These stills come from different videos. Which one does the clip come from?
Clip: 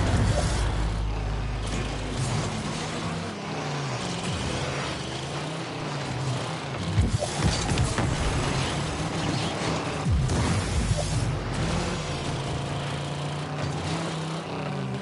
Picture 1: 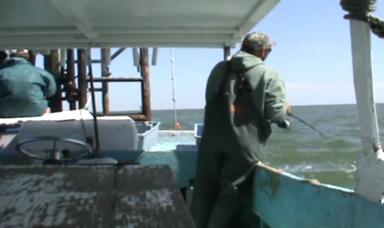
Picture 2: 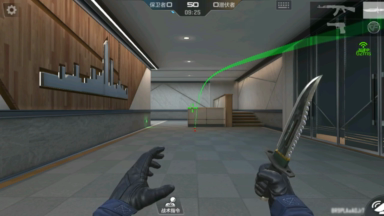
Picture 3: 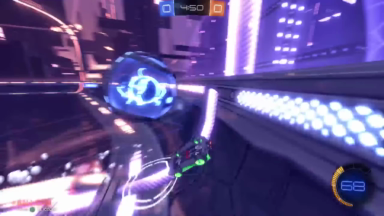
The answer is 3